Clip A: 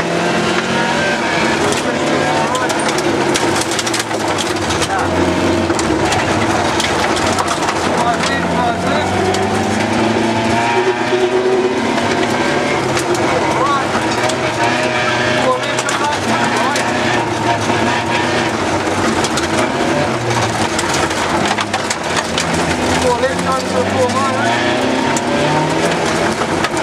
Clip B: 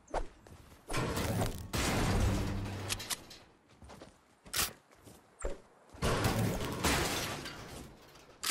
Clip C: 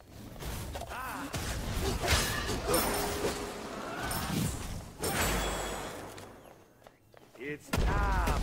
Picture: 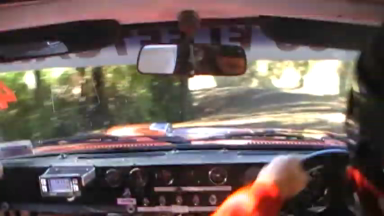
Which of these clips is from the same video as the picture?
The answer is A